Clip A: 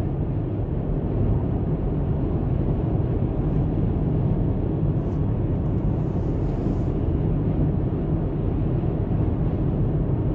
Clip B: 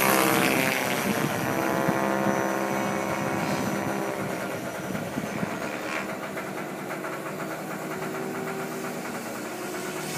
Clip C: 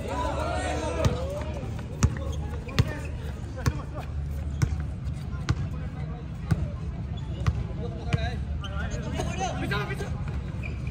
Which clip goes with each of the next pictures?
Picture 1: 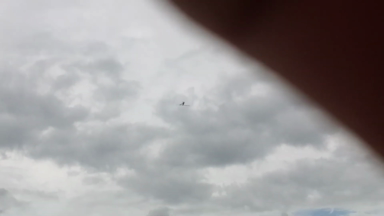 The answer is B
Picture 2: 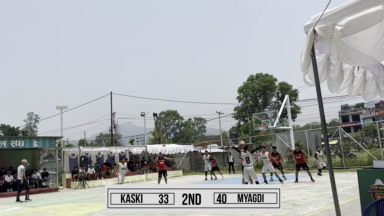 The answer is C